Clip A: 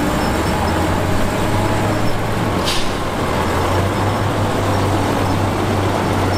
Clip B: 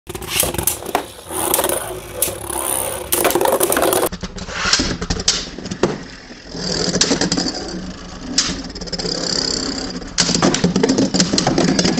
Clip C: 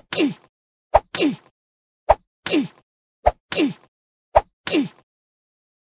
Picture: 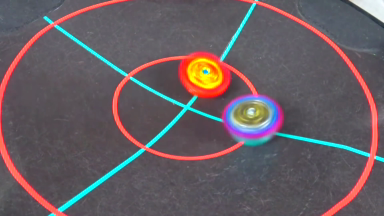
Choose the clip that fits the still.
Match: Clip B